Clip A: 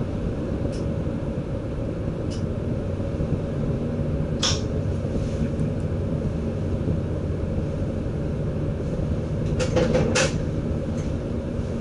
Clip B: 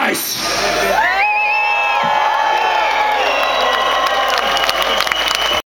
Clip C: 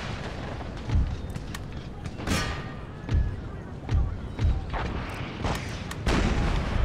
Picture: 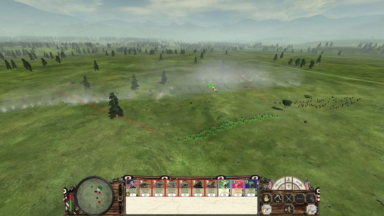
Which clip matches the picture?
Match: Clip C